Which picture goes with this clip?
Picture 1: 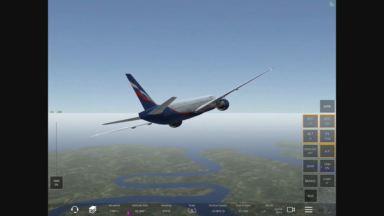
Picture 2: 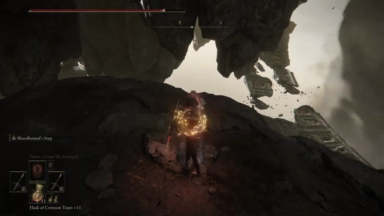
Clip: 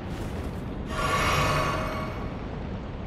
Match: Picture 2